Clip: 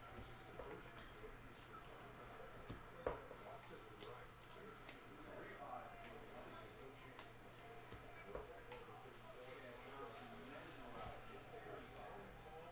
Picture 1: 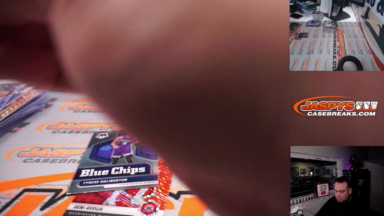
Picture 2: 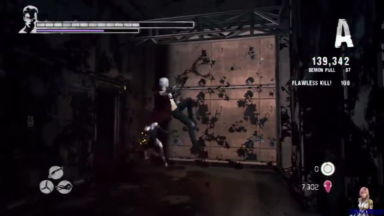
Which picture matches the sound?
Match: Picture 1